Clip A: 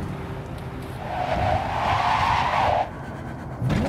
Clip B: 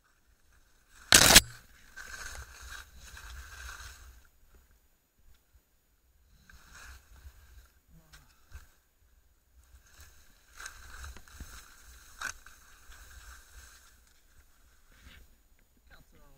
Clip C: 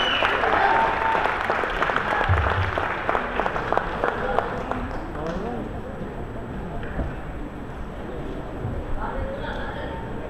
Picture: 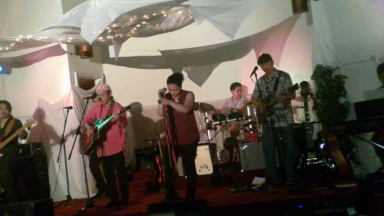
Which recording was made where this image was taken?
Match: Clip C